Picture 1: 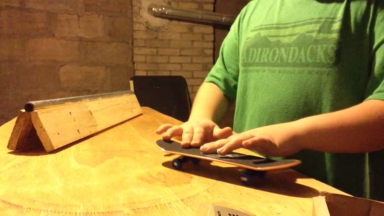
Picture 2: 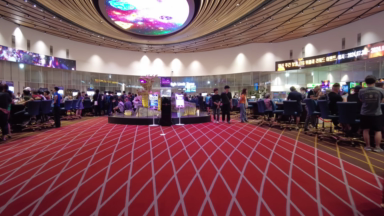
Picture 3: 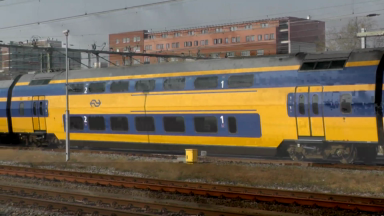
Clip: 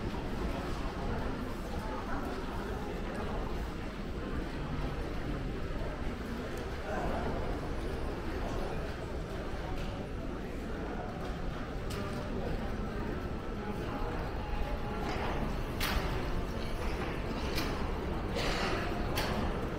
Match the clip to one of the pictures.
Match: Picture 2